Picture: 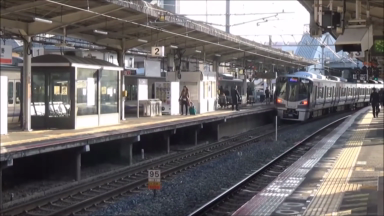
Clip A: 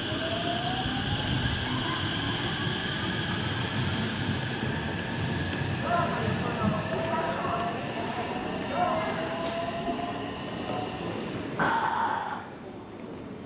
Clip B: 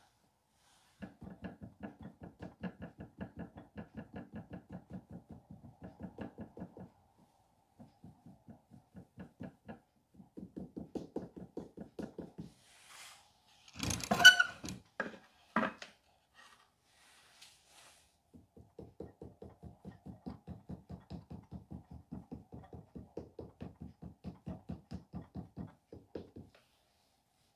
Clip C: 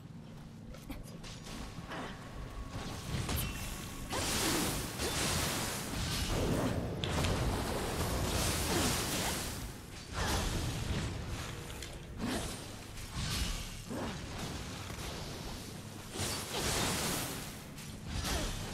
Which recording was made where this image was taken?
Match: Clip A